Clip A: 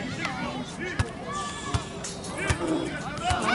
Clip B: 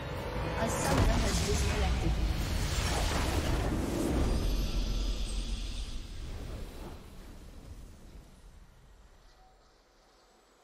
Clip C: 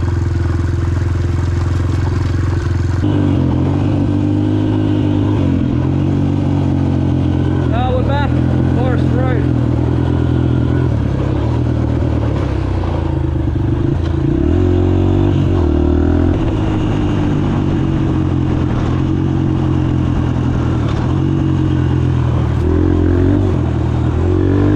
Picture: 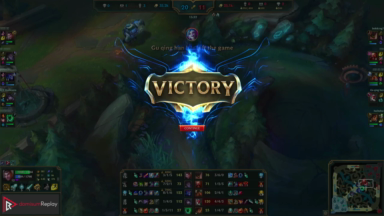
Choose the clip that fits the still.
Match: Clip B